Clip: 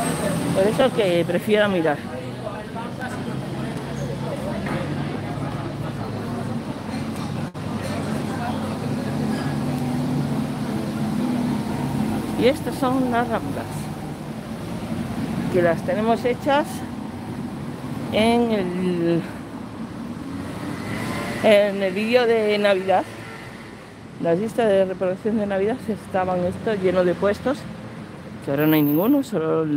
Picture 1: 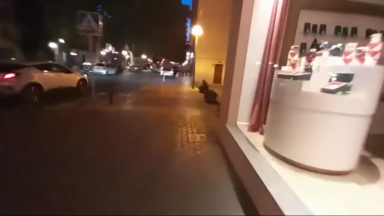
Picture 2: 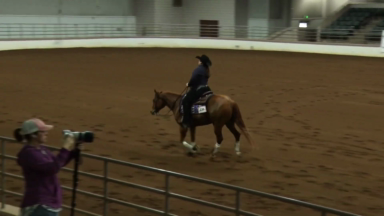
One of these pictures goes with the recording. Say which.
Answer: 1